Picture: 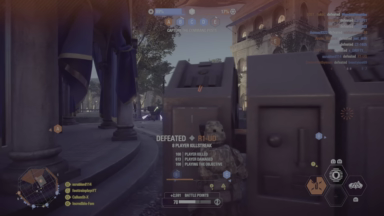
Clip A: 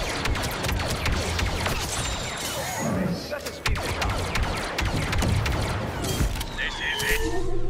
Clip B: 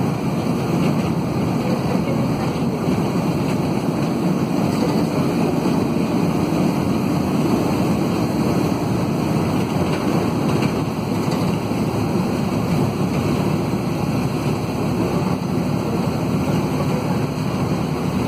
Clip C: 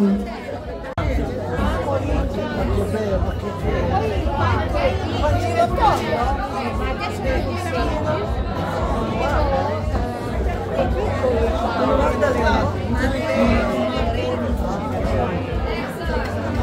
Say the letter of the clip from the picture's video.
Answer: A